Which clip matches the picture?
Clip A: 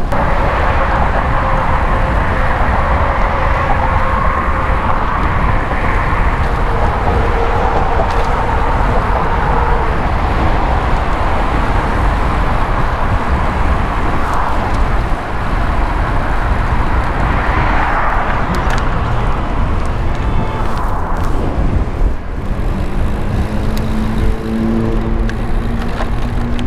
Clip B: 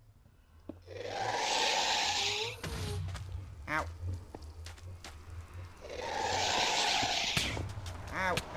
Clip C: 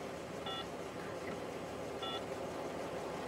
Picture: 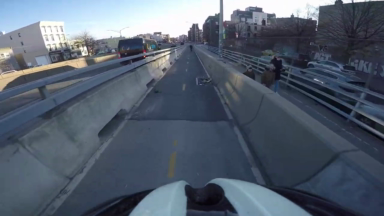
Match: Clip A